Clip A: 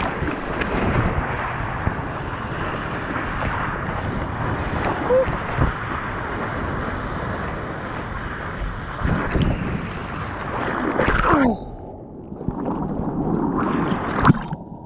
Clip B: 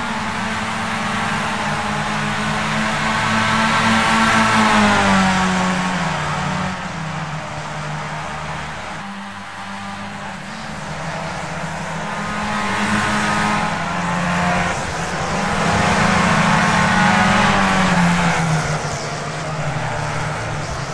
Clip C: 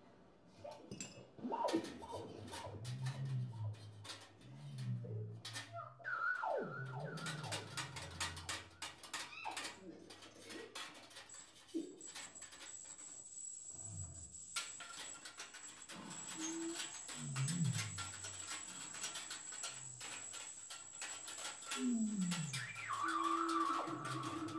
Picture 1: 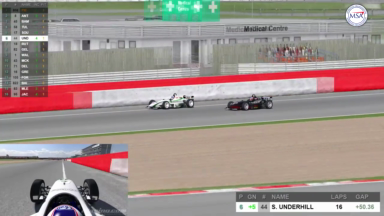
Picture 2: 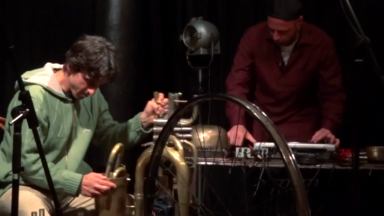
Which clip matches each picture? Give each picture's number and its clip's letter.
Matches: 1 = B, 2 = C